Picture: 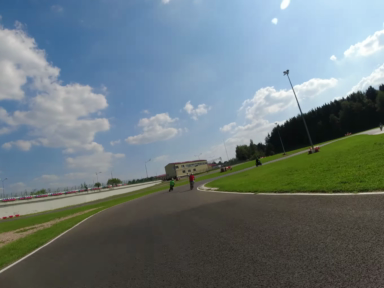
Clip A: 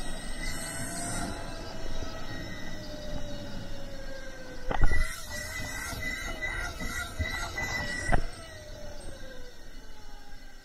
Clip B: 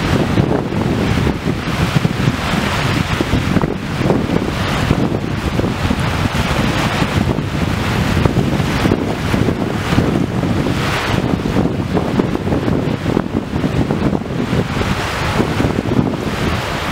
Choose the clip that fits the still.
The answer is A